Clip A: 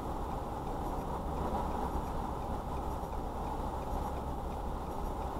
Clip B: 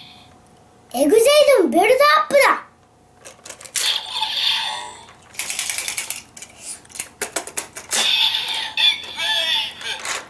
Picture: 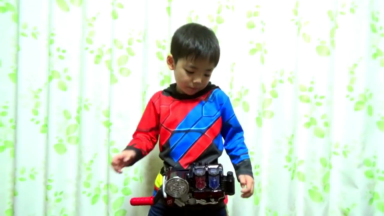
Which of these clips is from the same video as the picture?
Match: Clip B